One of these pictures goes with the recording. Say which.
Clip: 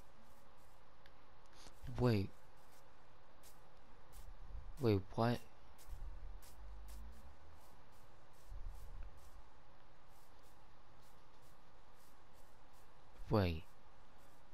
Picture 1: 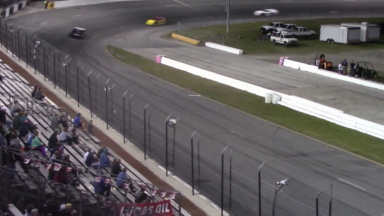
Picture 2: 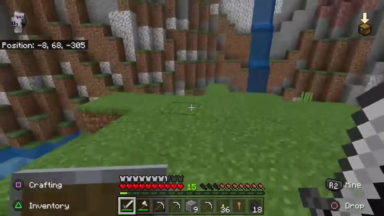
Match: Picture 2